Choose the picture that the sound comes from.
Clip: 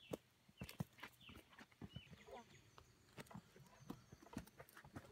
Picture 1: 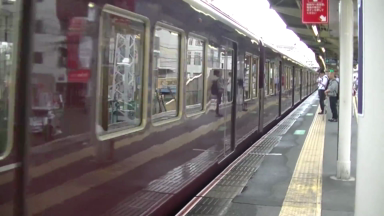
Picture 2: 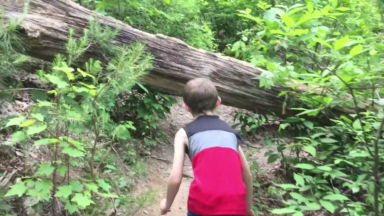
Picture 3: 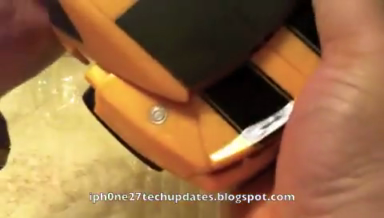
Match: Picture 2